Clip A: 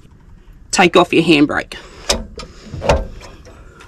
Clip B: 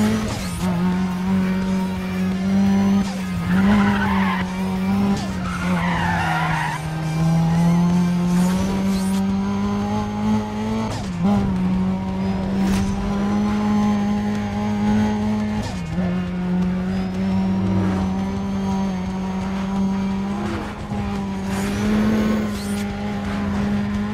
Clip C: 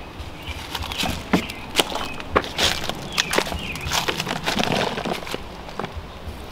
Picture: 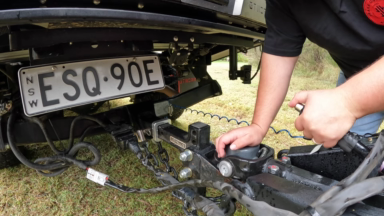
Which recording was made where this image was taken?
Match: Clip A